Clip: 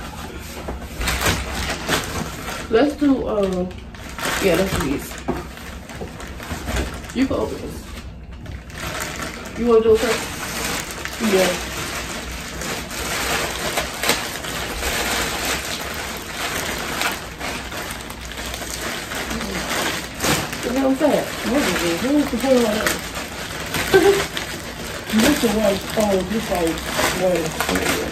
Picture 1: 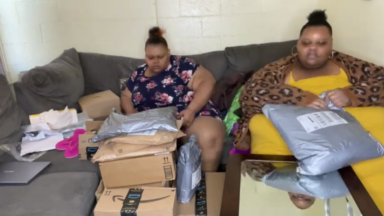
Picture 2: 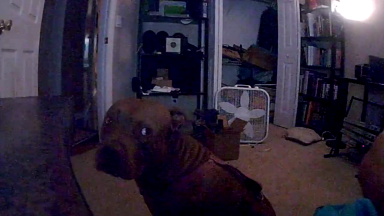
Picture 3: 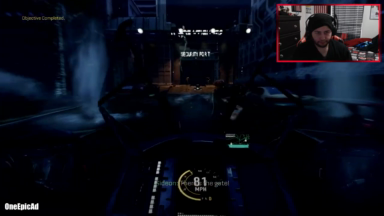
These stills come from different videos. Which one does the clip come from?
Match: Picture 1